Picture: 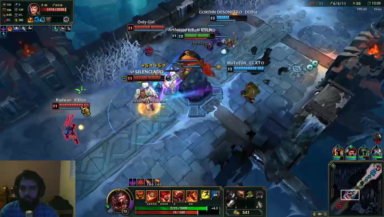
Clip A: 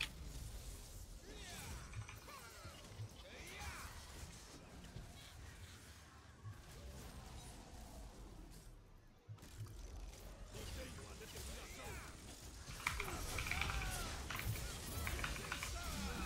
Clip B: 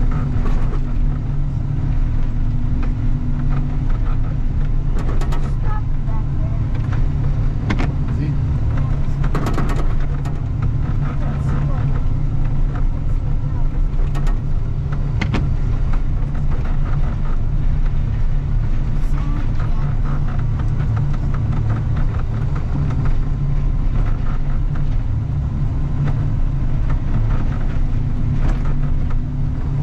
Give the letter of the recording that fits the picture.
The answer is A